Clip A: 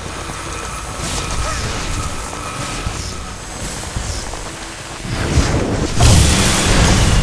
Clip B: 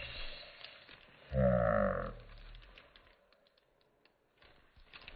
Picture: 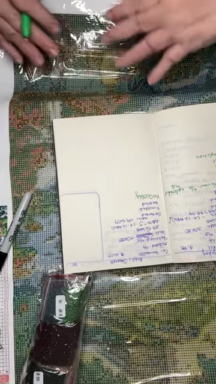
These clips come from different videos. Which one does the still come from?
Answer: B